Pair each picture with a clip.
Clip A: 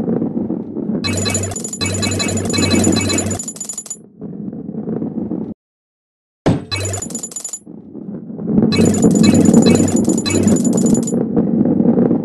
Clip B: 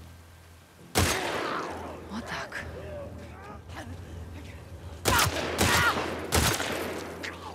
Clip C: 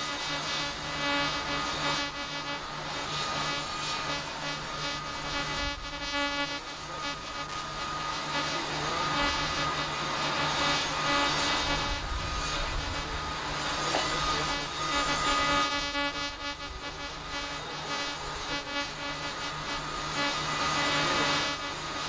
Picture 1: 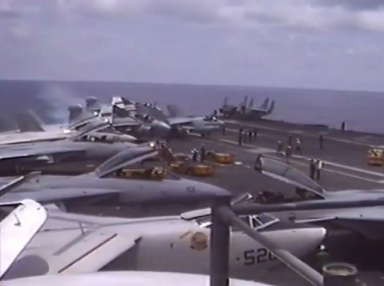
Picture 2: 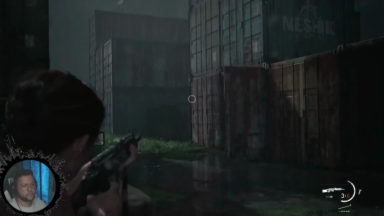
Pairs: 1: C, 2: B